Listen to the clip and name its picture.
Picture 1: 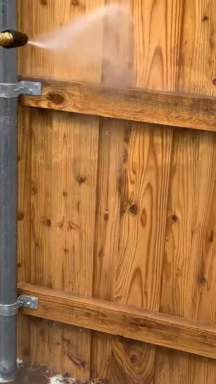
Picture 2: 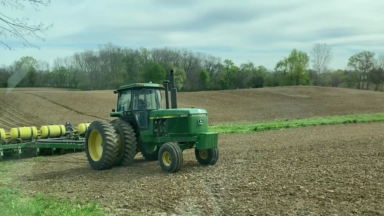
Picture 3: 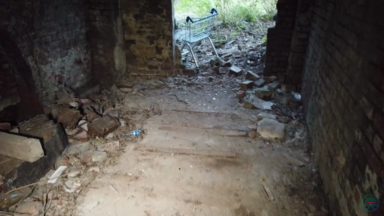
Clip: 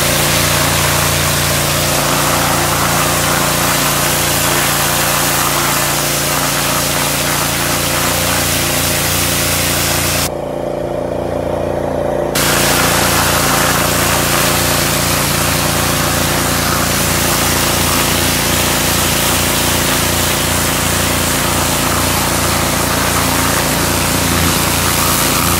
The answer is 1